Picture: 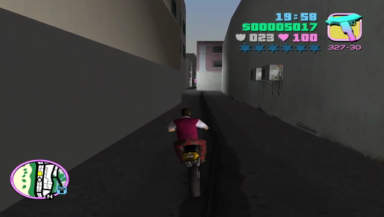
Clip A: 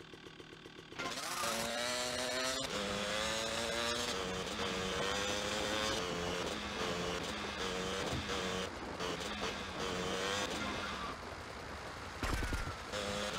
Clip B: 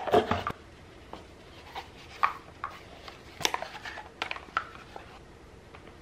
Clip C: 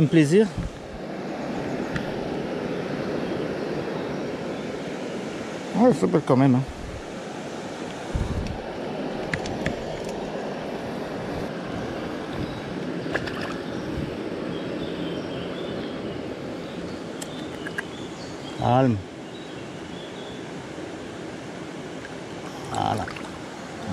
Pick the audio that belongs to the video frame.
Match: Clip A